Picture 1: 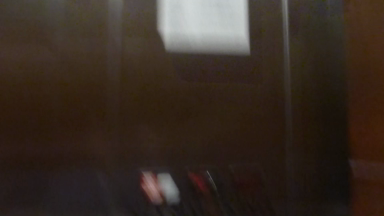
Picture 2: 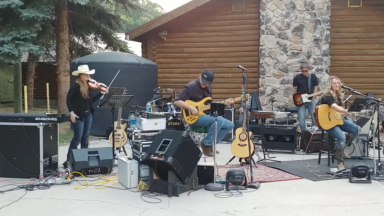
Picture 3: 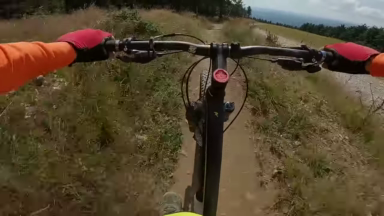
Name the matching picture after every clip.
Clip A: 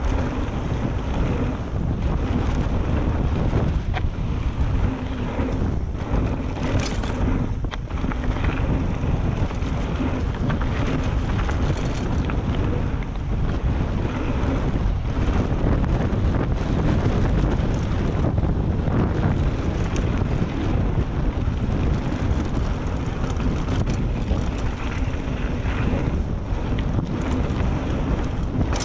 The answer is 3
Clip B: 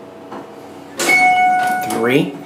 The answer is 1